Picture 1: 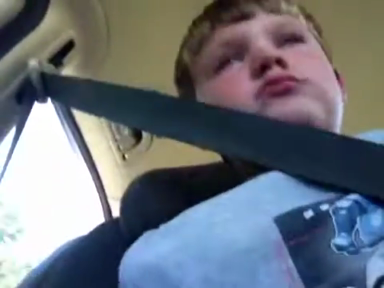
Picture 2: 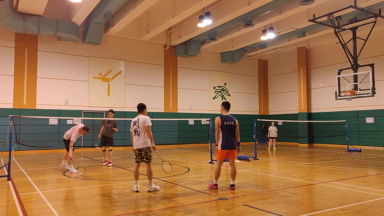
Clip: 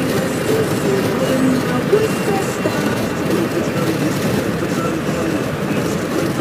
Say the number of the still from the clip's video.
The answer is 1